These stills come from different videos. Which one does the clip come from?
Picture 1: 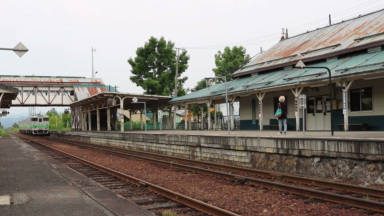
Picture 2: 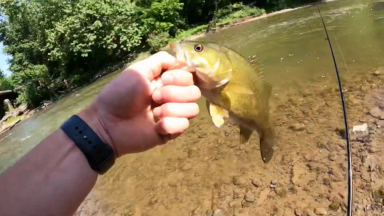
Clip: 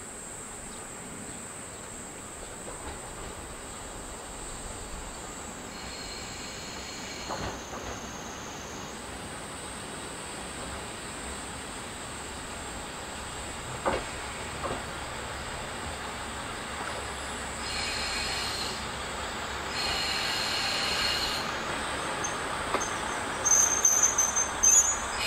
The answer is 1